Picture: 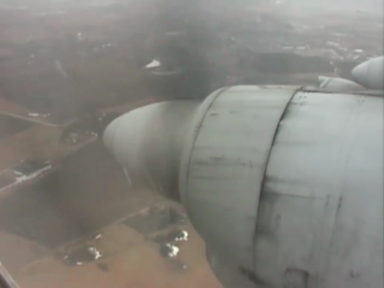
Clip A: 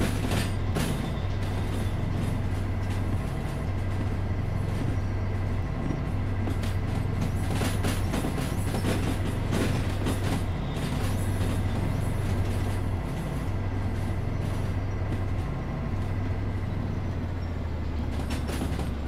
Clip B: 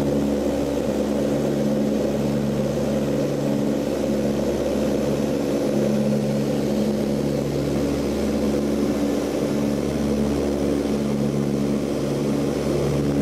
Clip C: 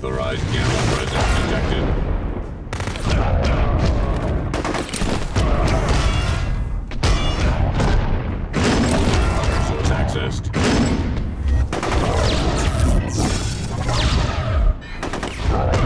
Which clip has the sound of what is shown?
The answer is B